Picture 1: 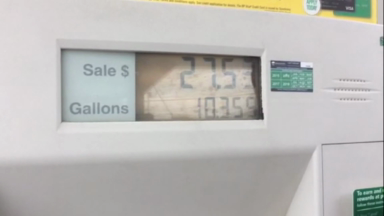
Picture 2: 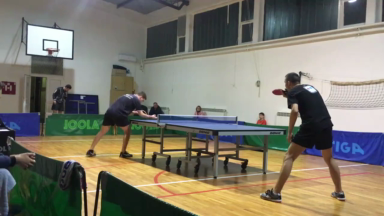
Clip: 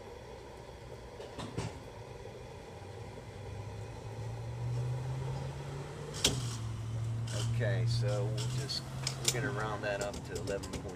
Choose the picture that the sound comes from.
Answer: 1